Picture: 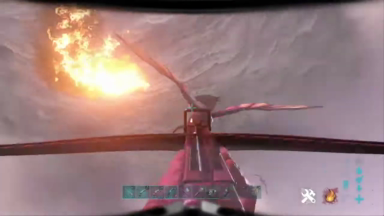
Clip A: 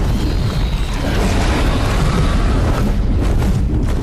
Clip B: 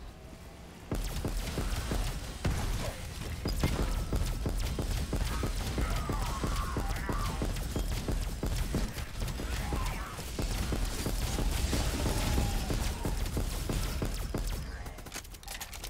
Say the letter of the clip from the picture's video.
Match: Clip A